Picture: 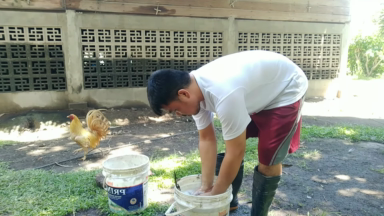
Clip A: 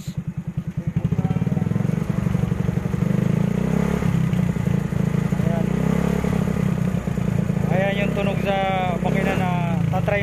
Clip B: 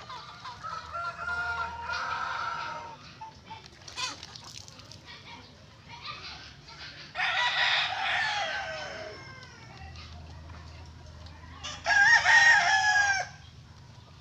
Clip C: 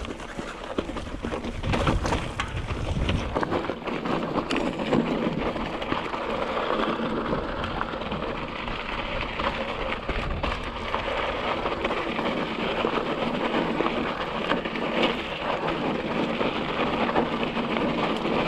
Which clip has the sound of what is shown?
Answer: B